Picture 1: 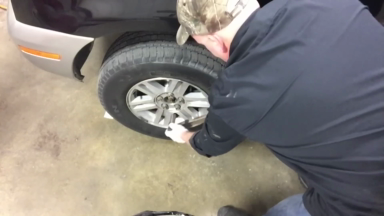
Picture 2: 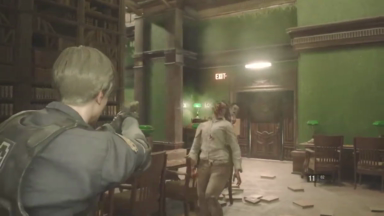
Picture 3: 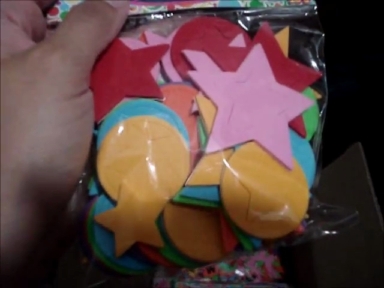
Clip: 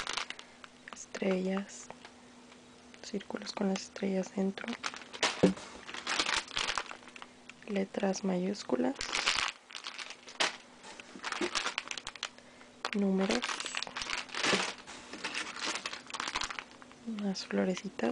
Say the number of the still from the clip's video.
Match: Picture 3